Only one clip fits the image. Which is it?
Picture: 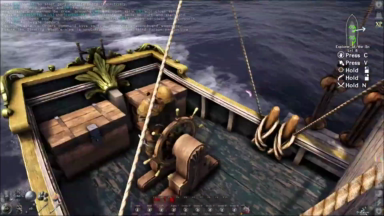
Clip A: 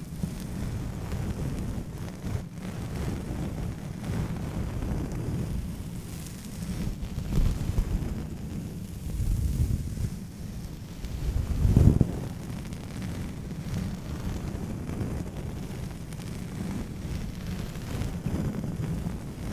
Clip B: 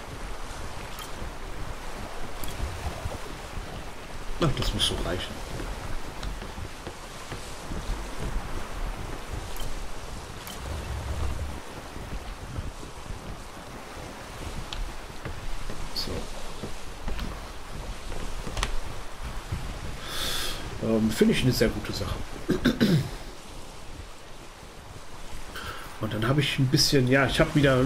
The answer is B